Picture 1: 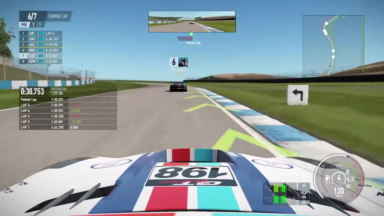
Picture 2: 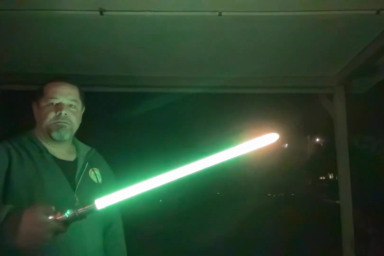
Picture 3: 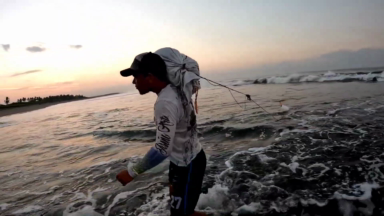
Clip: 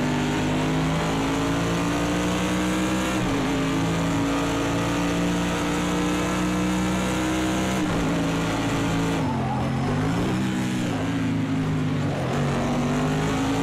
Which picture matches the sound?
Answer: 1